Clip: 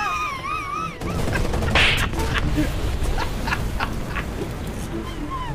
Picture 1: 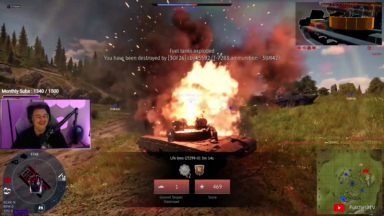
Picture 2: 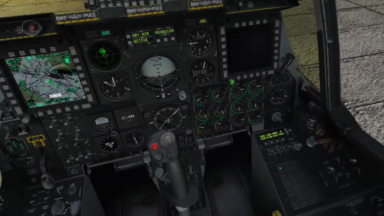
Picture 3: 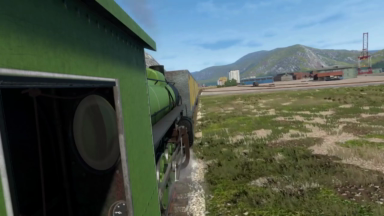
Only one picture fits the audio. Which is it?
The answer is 1